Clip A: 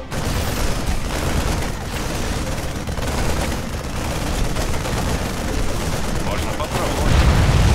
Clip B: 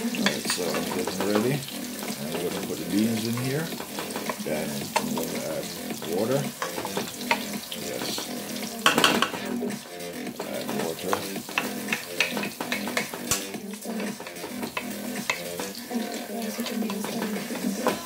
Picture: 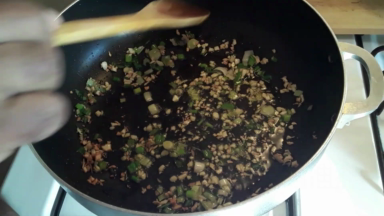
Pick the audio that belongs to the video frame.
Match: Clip B